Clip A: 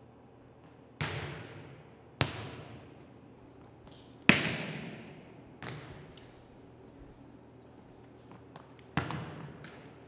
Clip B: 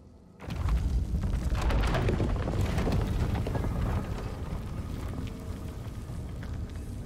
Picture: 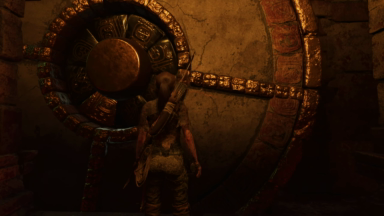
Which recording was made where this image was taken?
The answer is B